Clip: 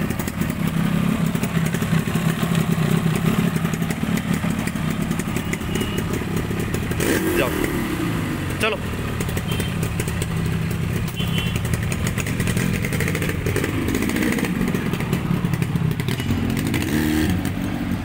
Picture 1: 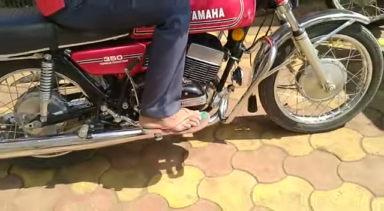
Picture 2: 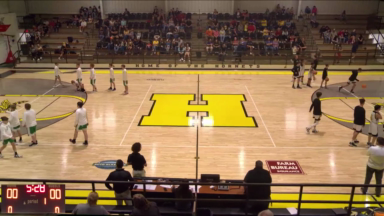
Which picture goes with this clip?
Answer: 1